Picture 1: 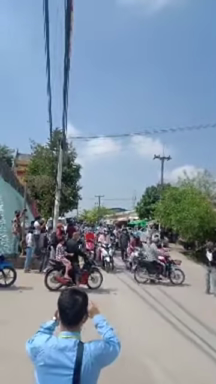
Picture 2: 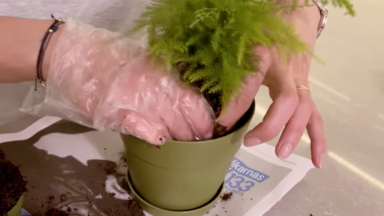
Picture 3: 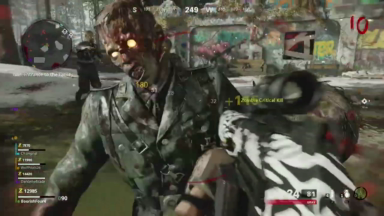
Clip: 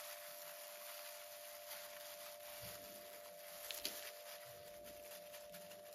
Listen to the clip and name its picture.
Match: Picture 2